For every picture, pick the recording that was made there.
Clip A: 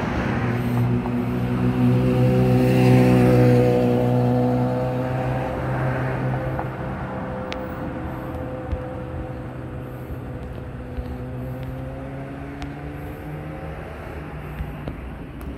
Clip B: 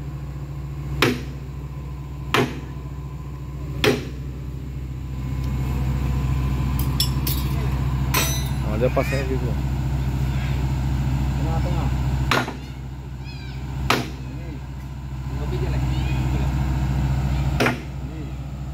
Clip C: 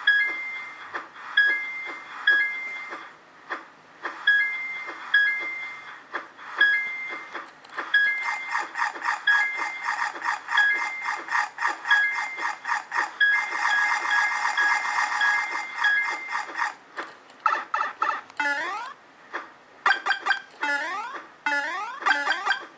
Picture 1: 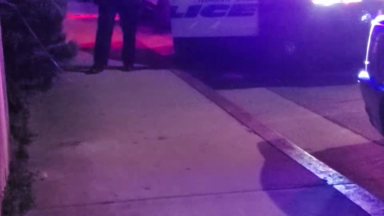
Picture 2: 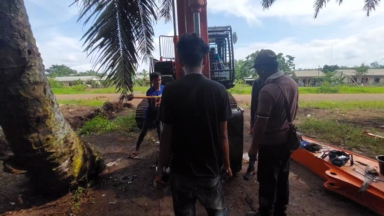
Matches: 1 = A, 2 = B